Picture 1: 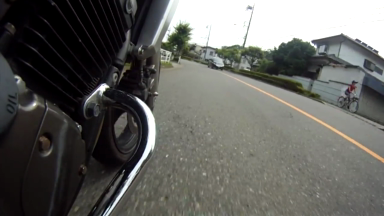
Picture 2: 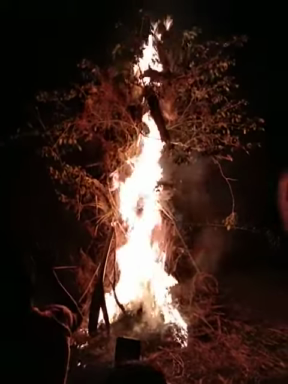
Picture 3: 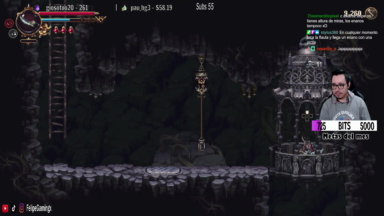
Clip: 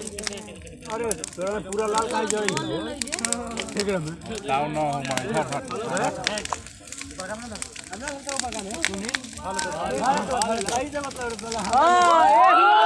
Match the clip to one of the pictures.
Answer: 2